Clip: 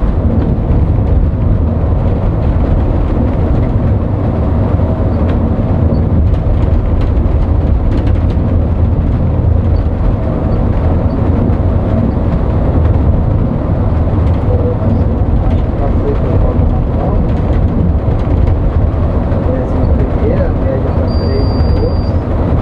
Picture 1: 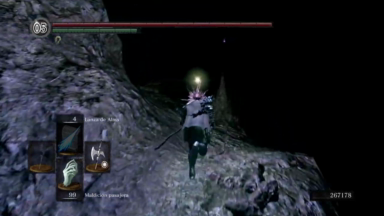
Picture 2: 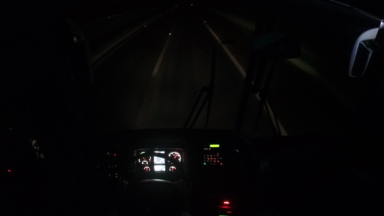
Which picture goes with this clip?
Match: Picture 2